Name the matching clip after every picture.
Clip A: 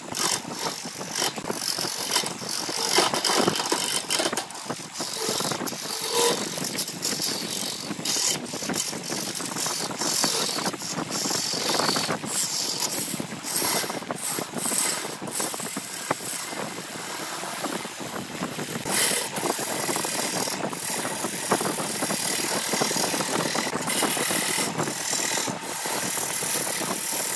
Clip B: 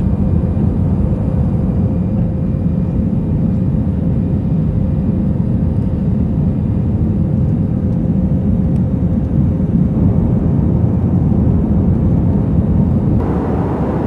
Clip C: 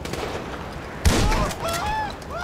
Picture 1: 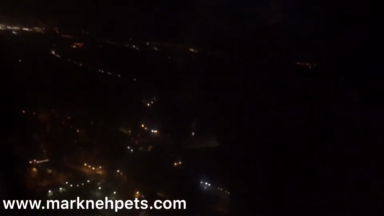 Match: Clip B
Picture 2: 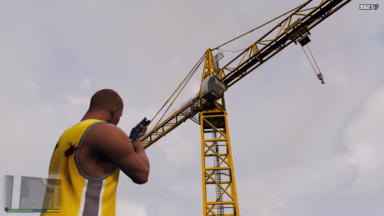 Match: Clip C